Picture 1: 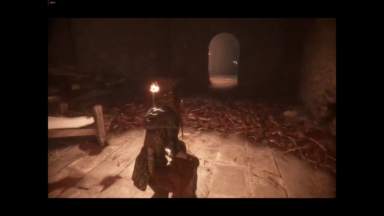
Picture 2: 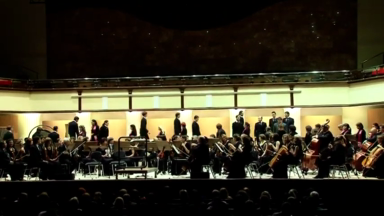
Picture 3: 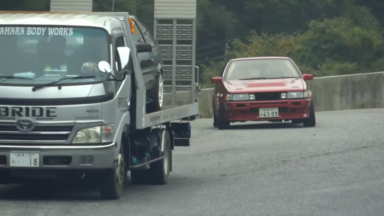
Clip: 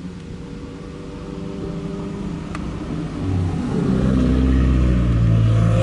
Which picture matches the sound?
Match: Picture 3